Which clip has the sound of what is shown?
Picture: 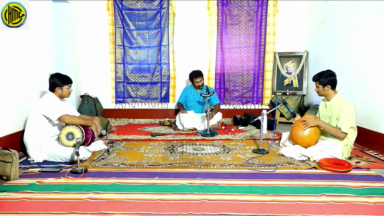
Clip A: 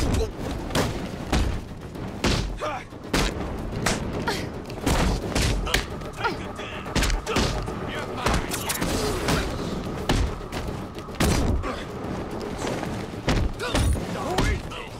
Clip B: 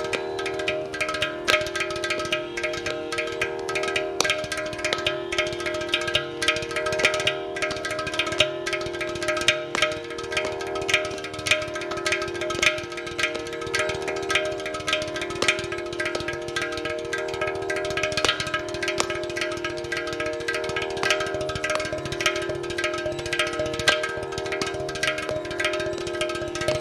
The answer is B